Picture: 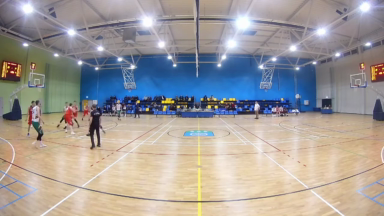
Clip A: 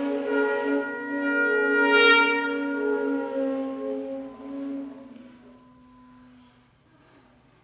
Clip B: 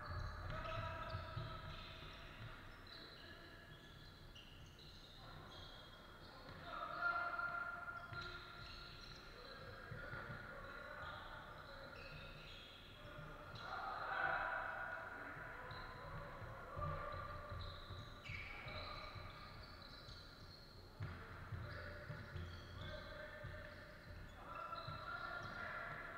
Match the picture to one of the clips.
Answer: B